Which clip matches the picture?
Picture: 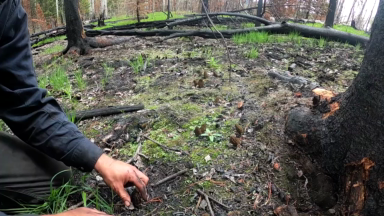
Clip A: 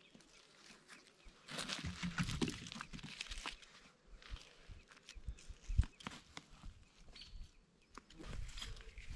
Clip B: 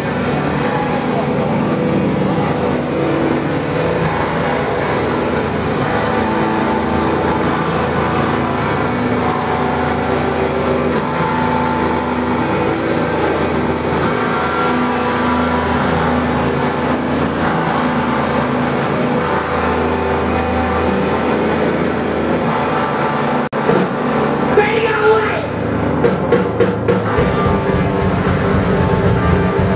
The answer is A